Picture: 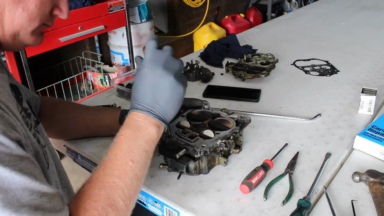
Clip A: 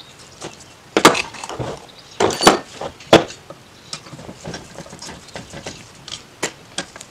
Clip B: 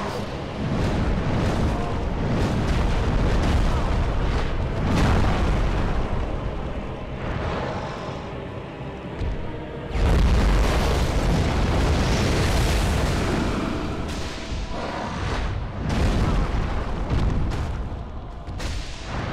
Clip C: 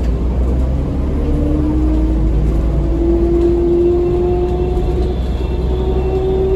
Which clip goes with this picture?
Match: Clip A